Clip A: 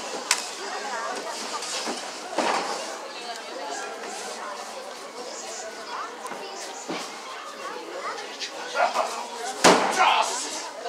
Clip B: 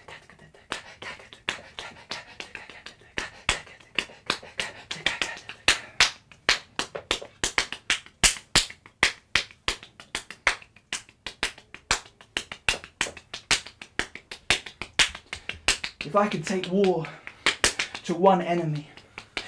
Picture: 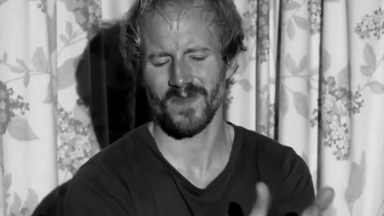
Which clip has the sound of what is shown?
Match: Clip B